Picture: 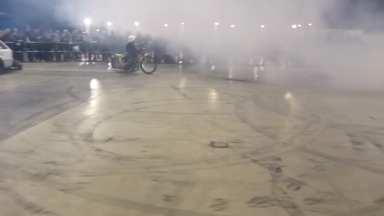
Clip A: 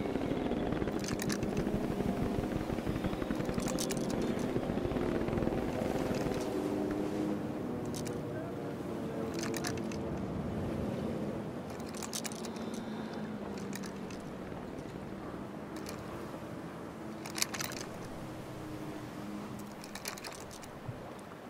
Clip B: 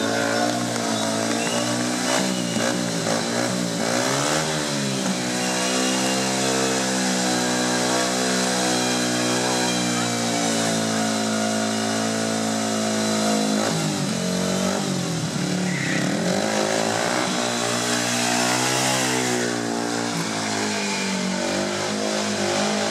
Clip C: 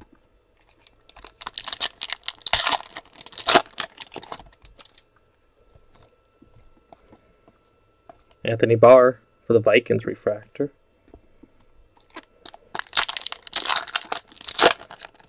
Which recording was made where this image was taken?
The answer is B